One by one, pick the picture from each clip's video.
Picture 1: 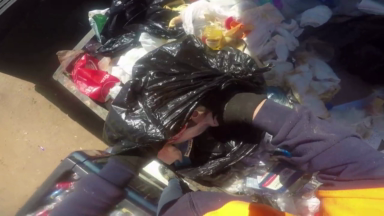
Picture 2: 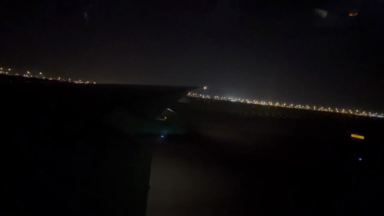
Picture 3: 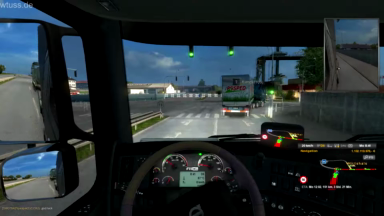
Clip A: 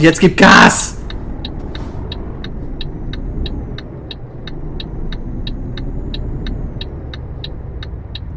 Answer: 3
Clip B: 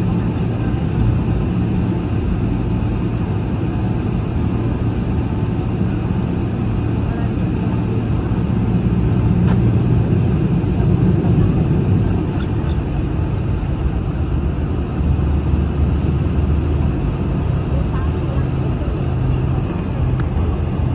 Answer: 2